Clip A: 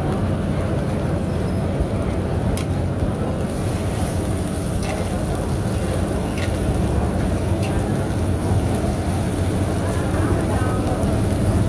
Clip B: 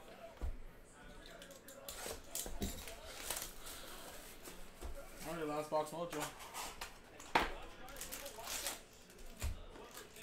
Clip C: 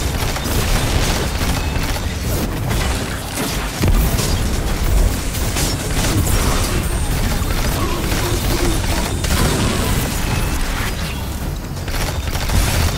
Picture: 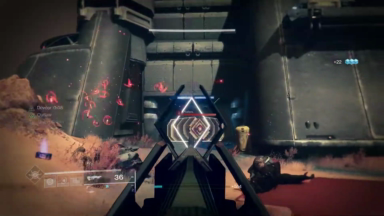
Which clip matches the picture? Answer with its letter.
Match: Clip C